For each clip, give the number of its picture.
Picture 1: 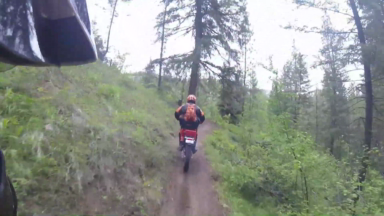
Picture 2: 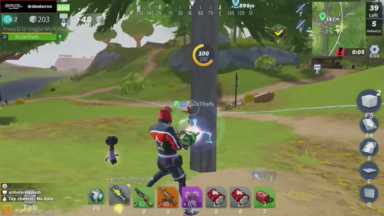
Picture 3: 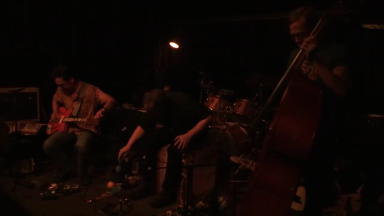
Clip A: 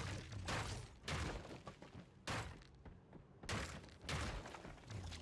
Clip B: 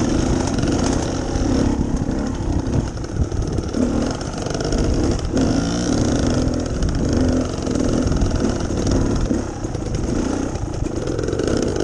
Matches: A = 2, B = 1